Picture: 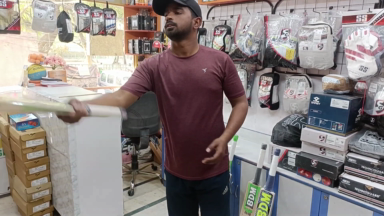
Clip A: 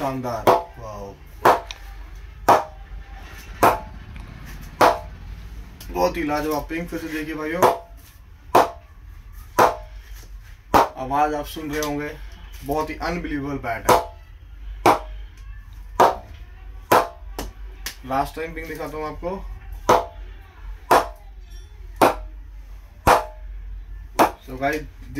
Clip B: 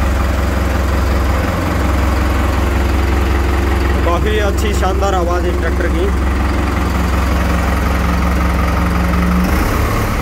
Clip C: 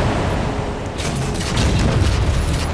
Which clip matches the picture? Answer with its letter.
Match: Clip A